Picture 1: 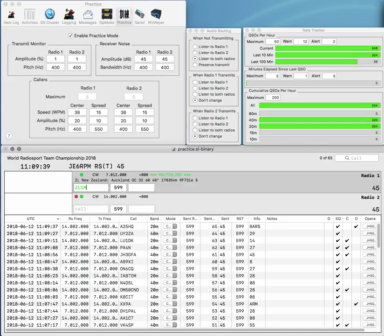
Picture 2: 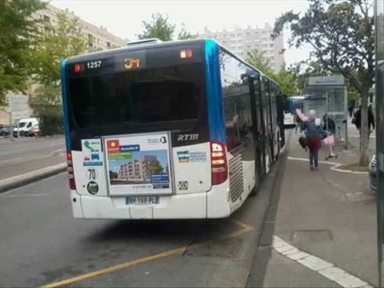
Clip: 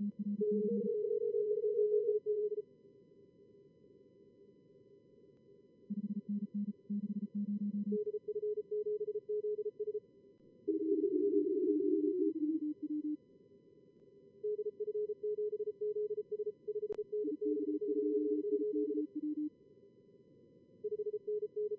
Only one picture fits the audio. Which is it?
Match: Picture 1